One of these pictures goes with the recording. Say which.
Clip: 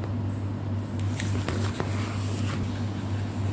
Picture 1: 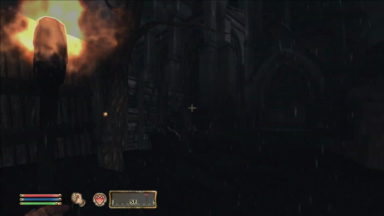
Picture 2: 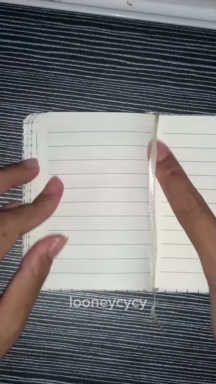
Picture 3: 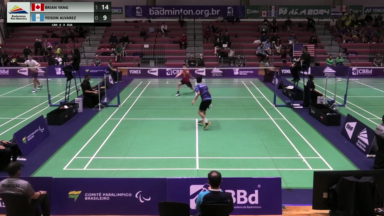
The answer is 2